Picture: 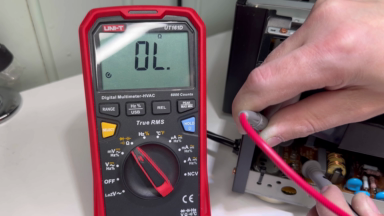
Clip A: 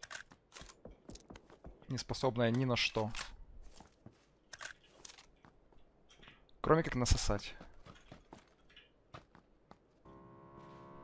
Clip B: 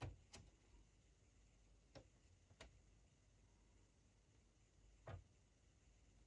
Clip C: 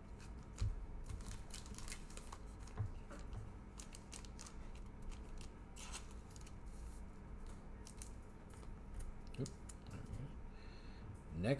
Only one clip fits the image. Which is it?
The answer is B